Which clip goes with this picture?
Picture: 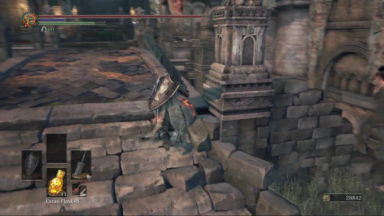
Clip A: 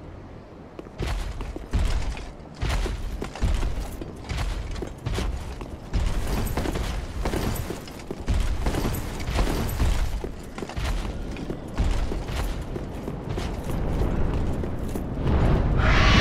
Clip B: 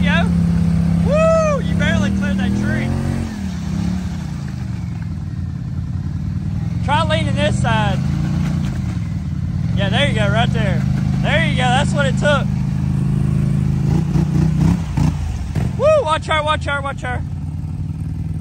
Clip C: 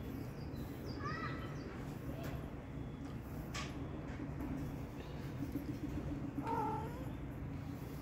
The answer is A